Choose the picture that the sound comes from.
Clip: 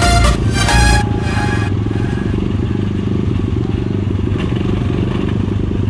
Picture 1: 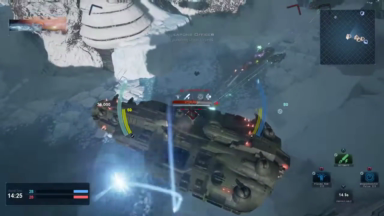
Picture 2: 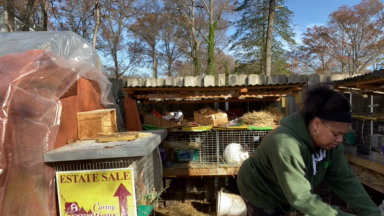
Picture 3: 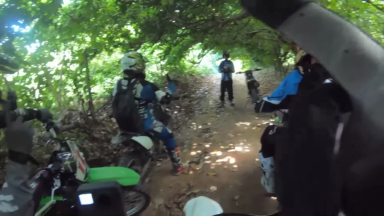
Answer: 3